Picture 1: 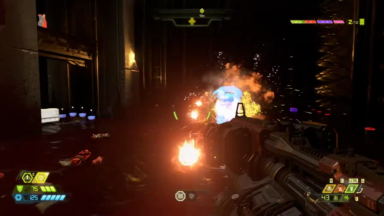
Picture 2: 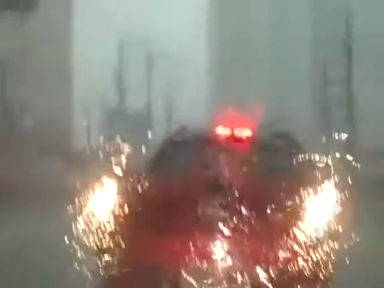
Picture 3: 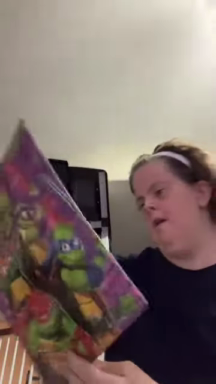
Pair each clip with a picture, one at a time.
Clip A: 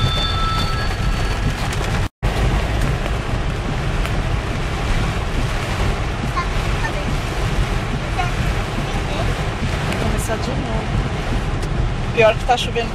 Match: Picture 2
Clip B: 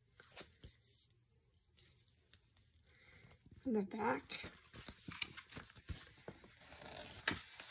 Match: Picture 3